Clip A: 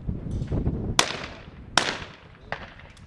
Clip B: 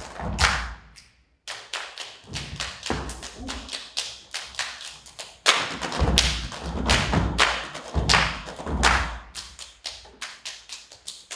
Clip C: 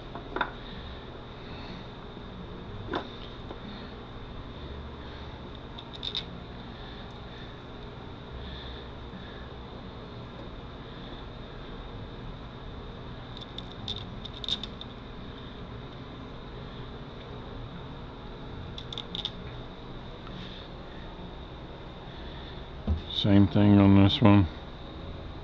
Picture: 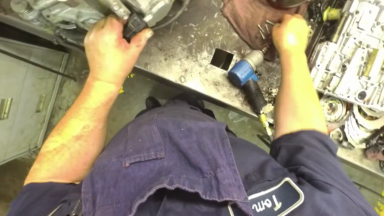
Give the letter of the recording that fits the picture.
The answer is C